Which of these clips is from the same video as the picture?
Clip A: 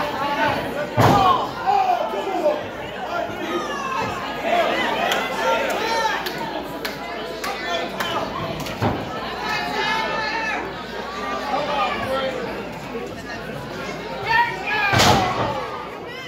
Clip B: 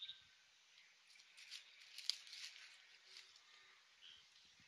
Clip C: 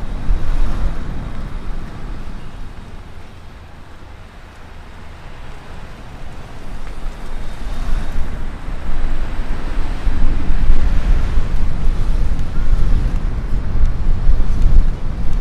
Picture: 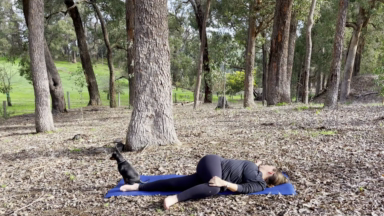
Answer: B